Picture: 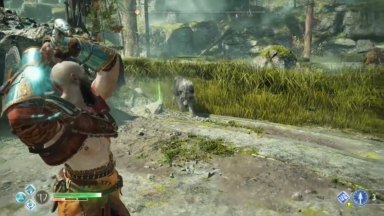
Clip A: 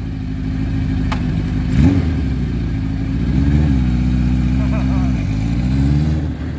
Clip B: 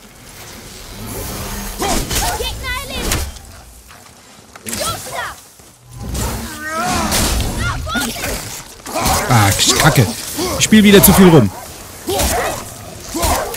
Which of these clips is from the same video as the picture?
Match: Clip B